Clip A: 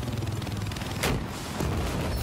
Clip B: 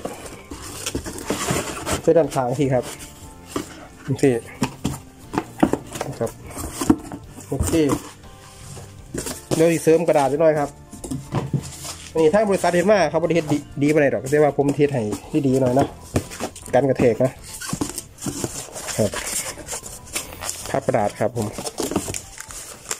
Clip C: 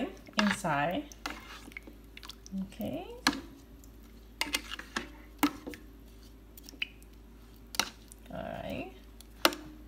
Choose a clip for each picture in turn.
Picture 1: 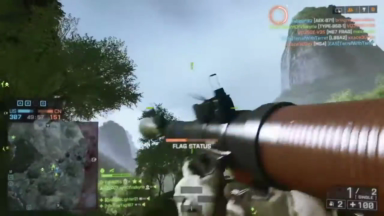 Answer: A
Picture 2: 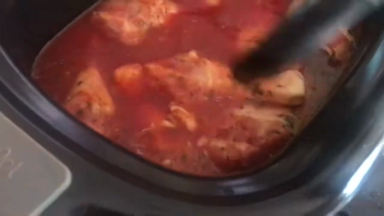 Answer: C